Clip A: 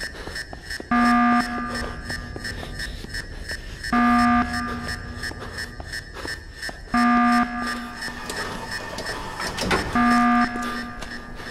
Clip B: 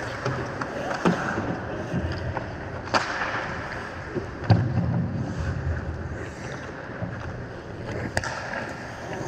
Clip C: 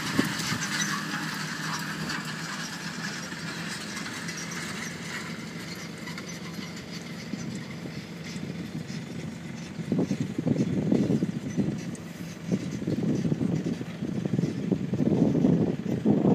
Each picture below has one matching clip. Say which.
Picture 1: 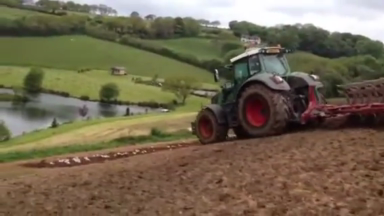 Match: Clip C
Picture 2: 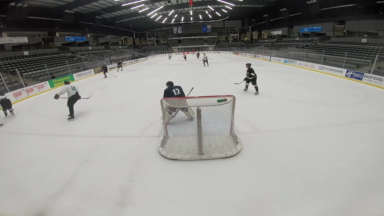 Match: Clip B